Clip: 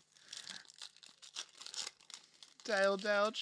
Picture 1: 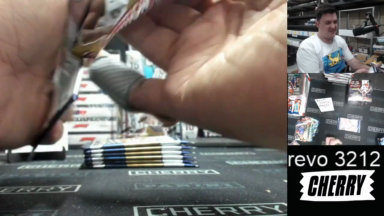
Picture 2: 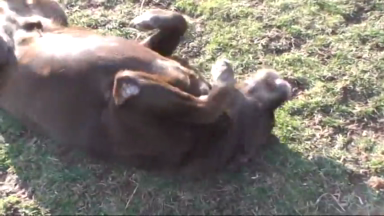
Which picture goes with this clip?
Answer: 1